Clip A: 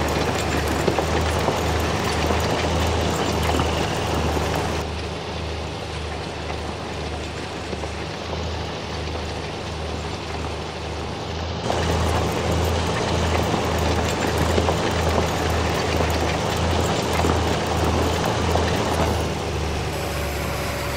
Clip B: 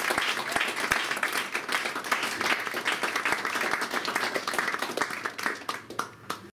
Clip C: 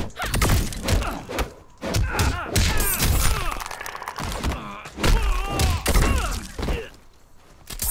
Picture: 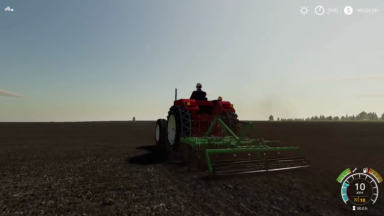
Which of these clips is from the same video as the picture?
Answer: A